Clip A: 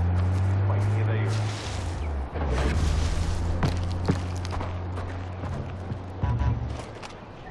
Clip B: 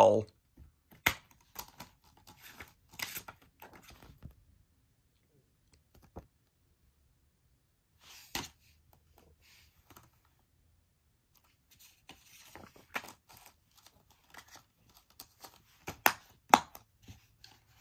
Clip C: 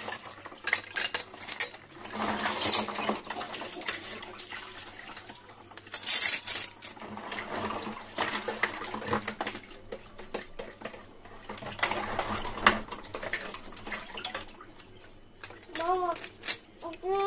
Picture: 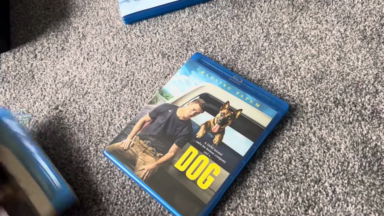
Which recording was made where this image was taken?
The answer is B